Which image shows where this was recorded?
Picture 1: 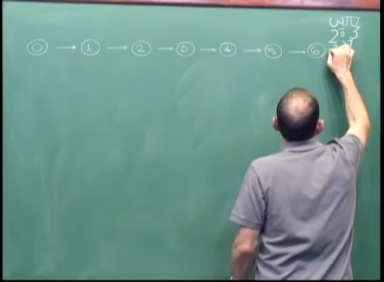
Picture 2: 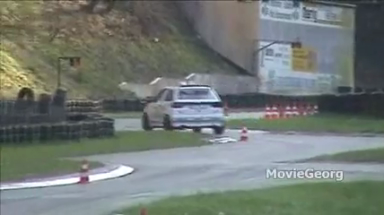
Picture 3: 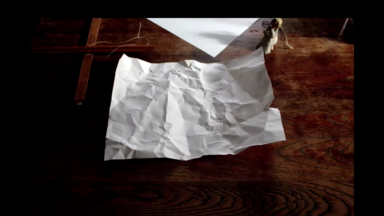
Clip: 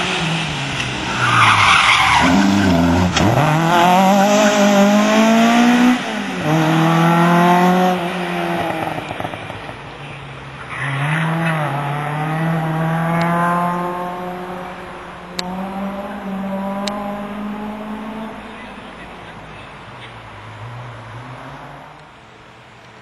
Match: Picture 2